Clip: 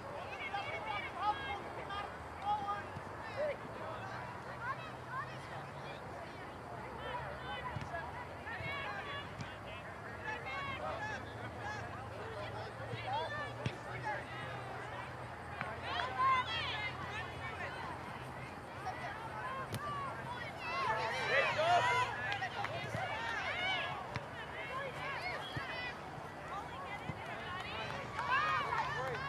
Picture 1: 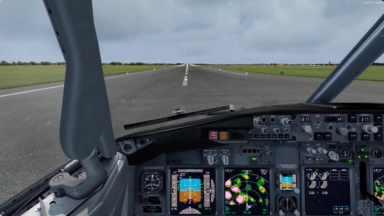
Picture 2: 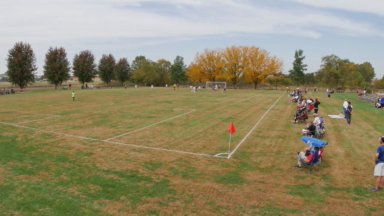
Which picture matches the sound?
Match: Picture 2